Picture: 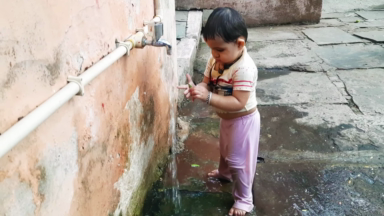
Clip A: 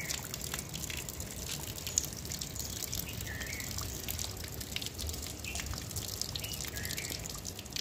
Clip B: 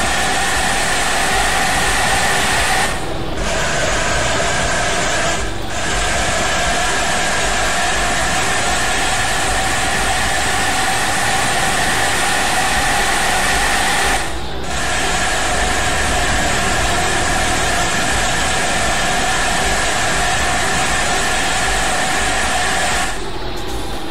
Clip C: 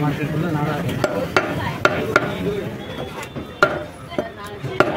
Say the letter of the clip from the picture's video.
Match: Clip A